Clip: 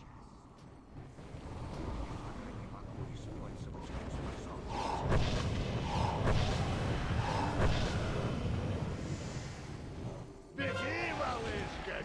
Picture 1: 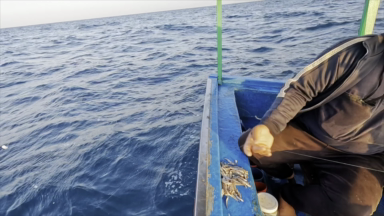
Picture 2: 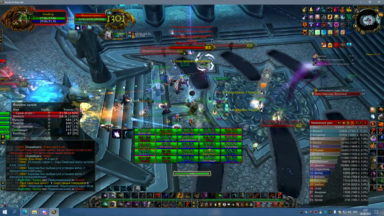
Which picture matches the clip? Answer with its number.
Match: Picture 2